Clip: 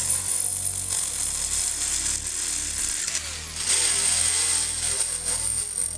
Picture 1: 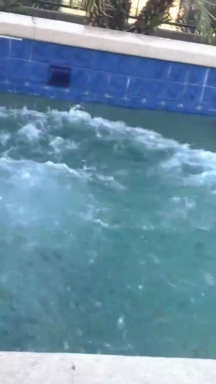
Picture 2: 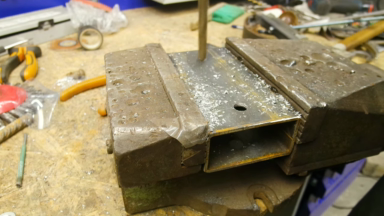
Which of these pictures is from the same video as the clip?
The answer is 2